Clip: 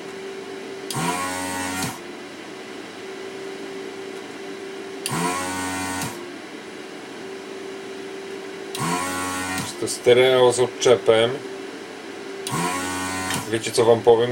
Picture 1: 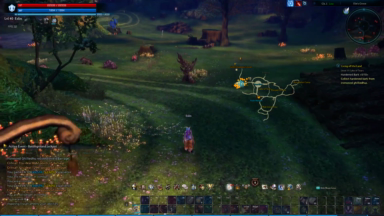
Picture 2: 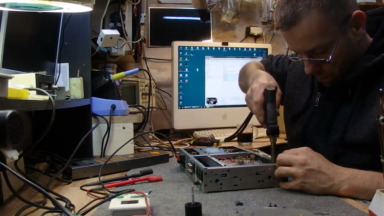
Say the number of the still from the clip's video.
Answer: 2